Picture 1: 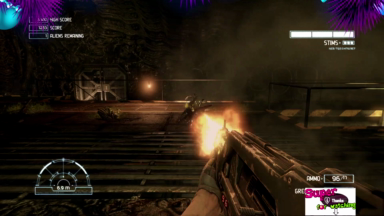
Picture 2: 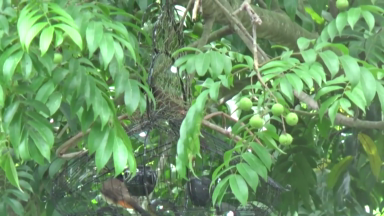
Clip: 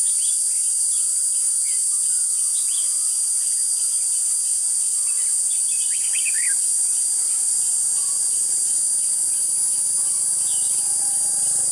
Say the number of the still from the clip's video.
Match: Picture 2